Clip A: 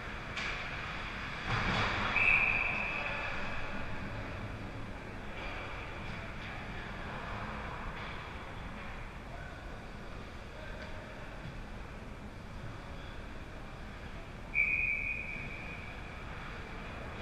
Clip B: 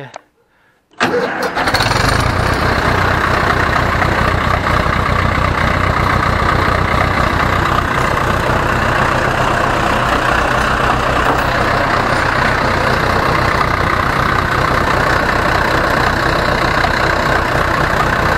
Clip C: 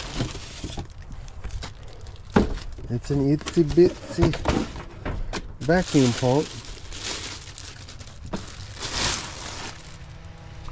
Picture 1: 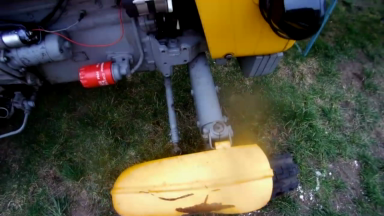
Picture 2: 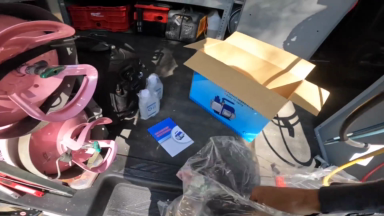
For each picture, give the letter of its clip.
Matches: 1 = B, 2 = C